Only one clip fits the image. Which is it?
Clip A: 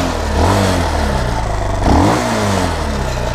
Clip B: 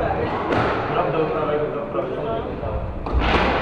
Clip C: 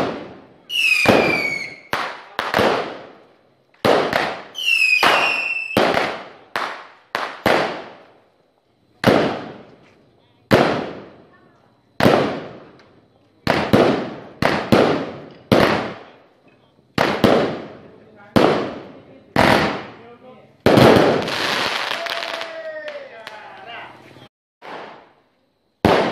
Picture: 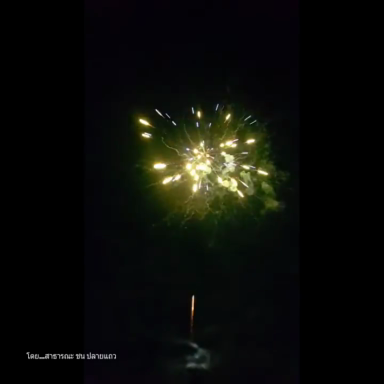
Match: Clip C